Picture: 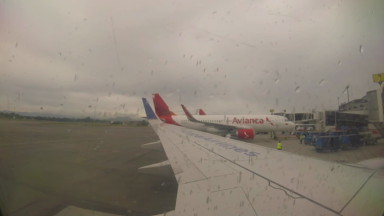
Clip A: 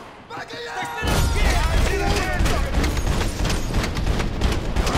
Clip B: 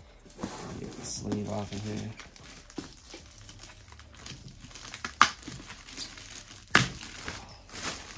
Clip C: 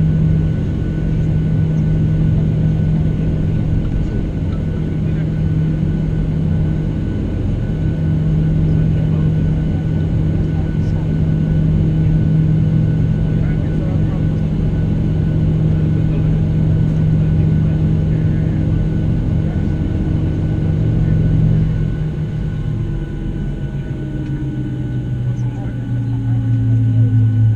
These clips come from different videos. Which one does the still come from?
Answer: C